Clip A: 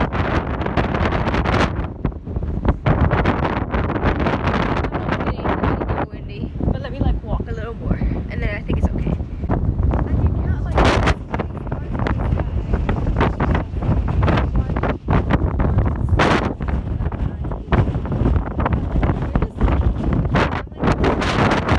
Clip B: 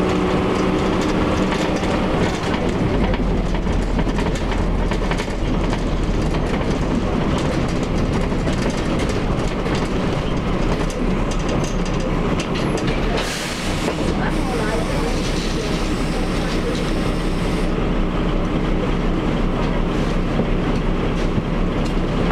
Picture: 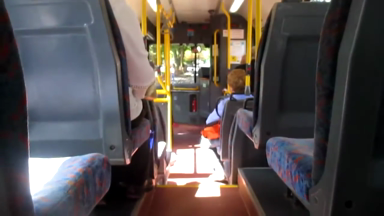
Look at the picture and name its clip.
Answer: B